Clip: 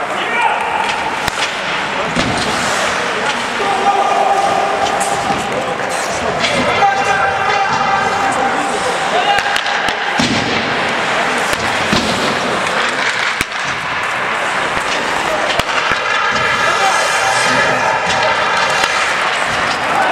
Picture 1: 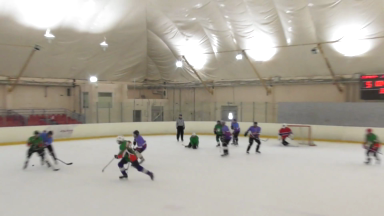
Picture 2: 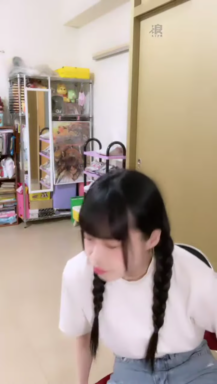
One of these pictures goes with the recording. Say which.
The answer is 1